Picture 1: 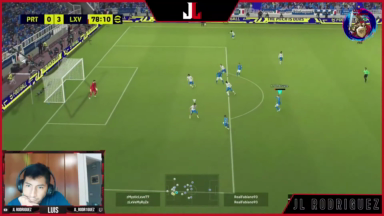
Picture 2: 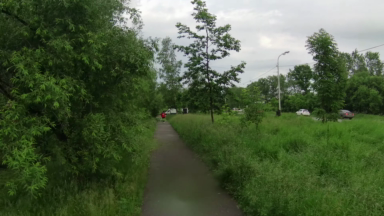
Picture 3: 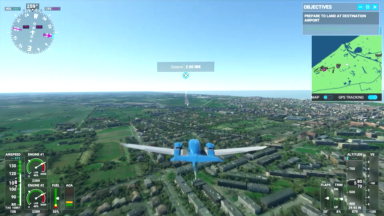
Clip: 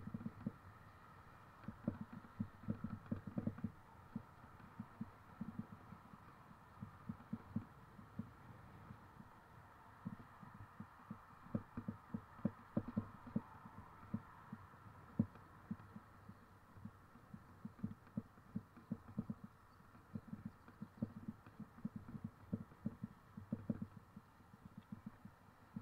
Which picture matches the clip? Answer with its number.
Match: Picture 2